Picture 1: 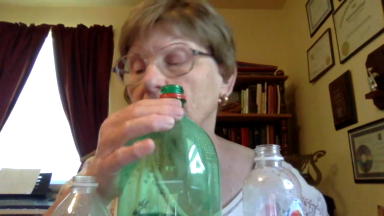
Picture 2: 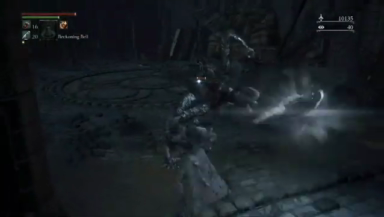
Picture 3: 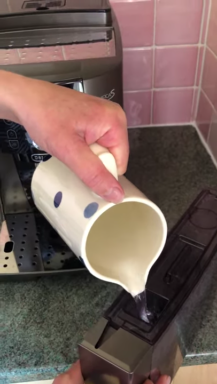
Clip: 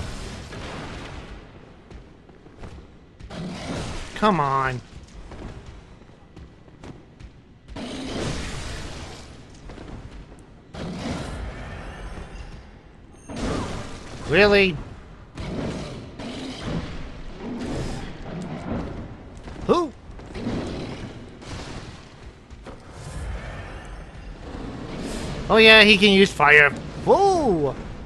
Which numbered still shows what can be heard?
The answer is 2